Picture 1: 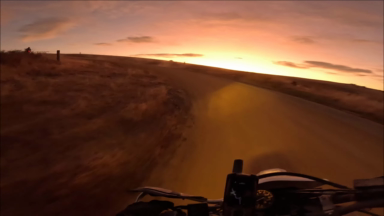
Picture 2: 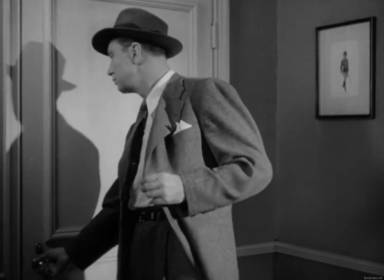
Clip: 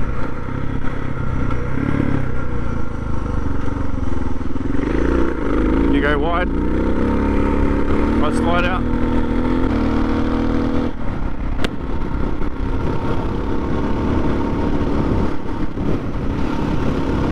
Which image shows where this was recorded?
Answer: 1